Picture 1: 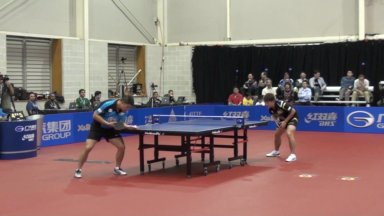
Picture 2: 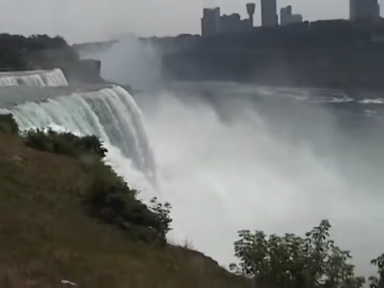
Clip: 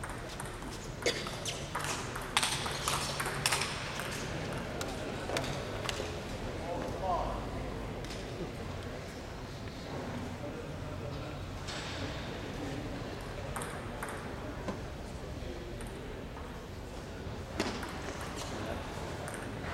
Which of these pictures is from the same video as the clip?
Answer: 1